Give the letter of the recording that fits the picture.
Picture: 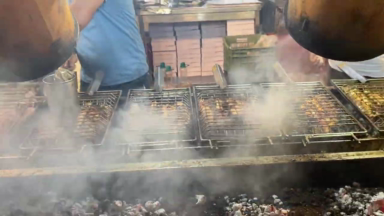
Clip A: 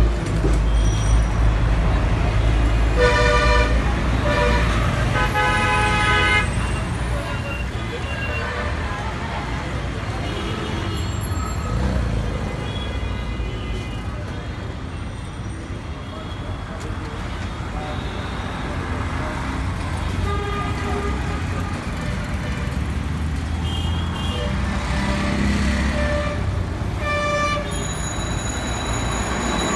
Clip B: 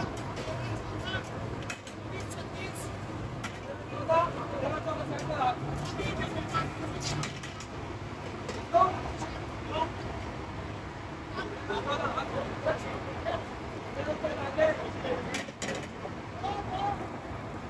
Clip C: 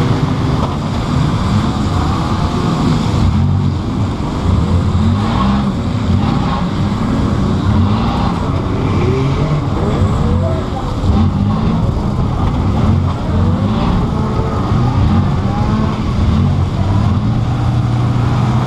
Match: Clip B